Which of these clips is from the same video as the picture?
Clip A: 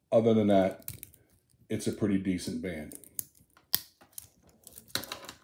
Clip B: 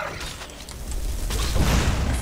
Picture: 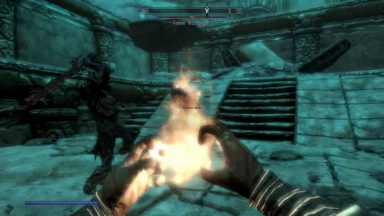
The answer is B